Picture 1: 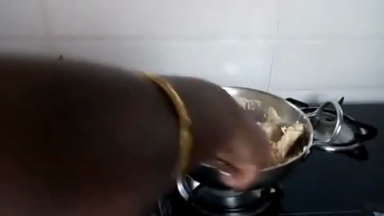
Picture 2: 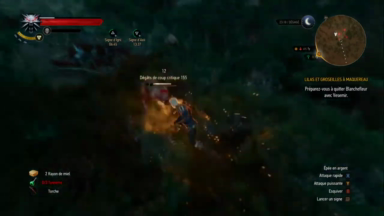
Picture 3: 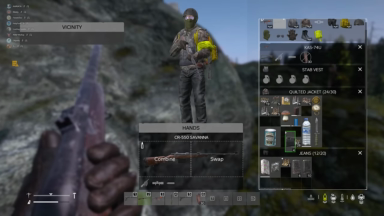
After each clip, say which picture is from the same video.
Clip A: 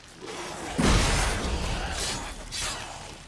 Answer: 2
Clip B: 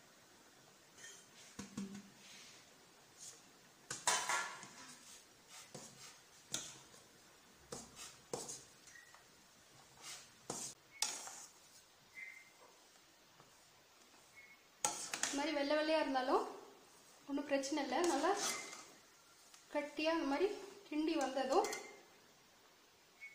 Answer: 1